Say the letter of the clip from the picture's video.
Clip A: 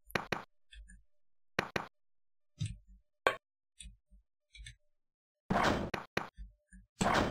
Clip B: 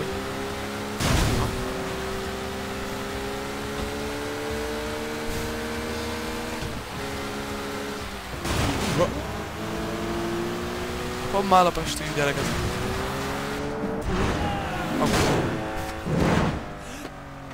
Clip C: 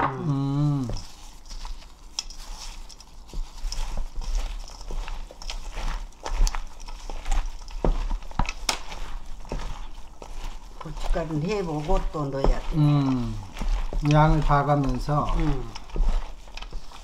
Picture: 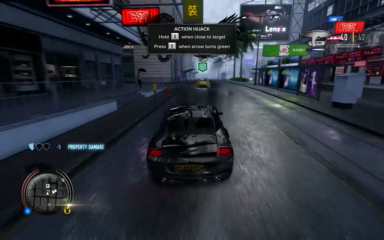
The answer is B